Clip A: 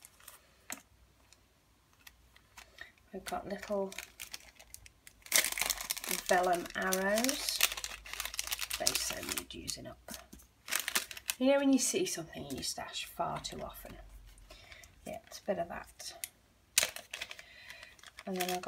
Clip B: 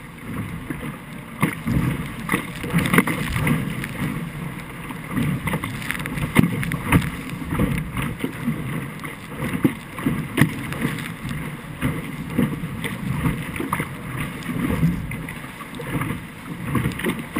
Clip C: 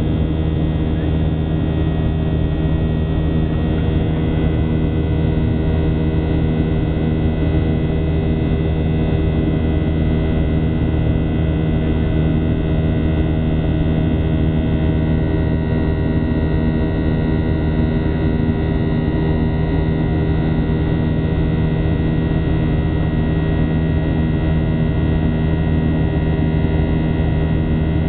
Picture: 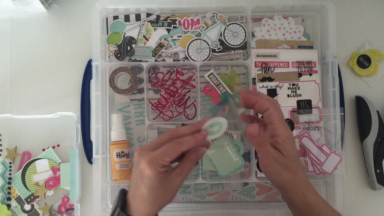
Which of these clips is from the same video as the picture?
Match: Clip A